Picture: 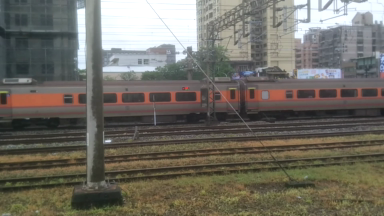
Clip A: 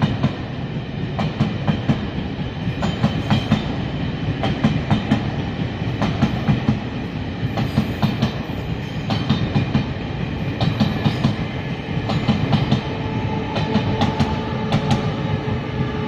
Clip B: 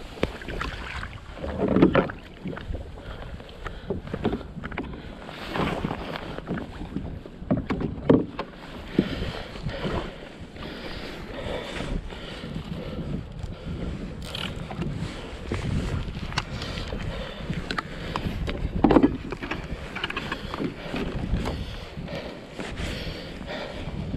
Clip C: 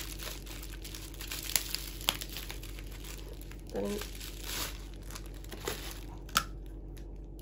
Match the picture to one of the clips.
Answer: A